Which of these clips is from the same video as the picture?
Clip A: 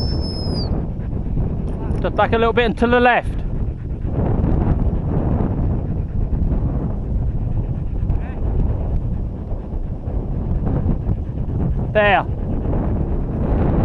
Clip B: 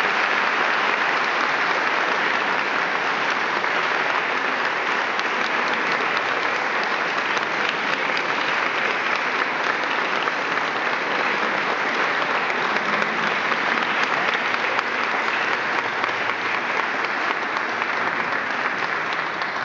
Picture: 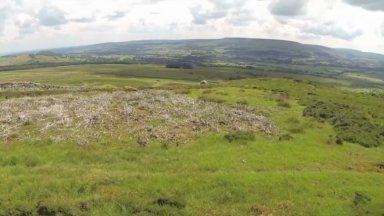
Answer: A